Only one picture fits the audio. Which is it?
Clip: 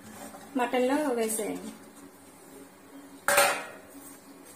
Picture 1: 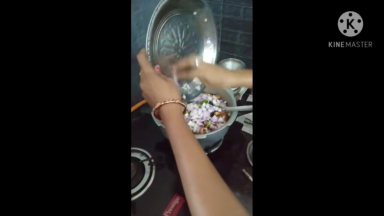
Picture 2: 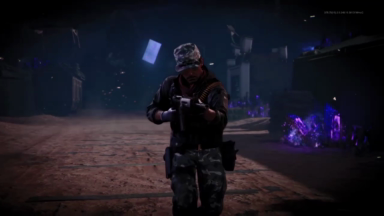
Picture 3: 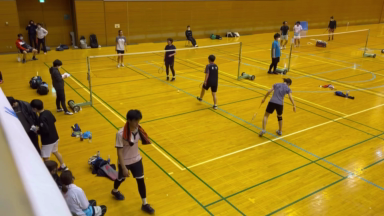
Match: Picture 1